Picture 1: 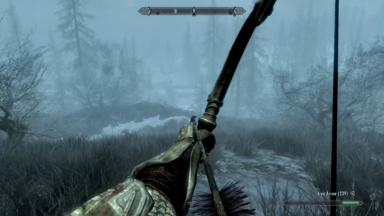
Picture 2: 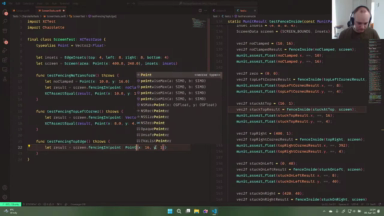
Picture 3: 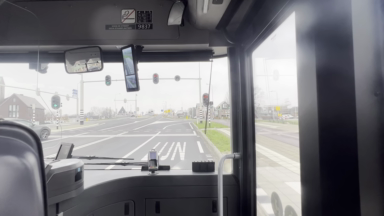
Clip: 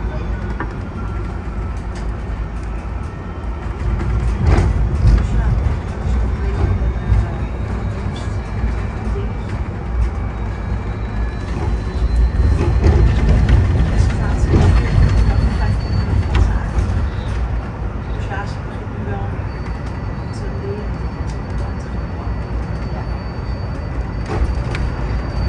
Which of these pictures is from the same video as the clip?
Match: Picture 3